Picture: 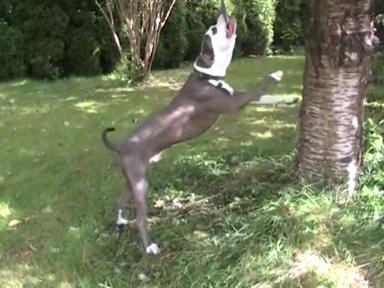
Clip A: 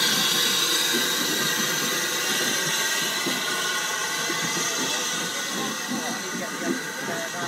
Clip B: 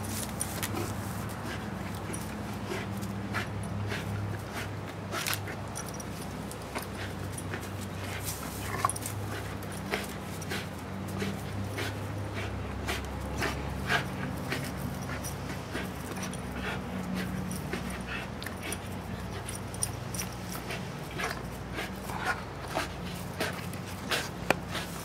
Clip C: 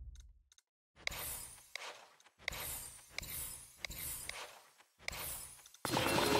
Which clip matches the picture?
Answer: B